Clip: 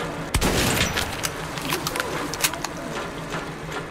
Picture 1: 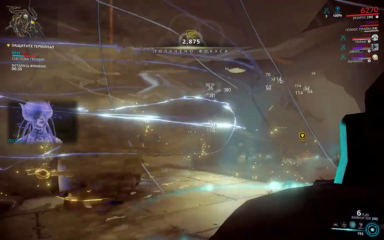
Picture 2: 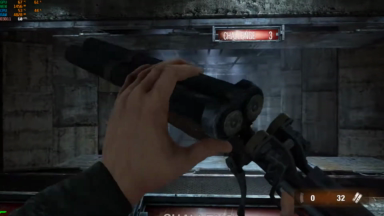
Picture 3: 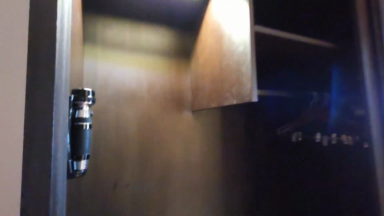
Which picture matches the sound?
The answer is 2